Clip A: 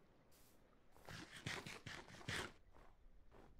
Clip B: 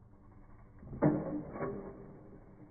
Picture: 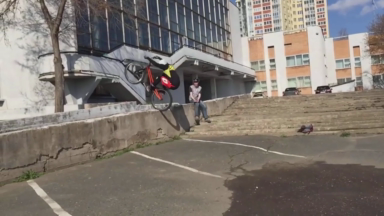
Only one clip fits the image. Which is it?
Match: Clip B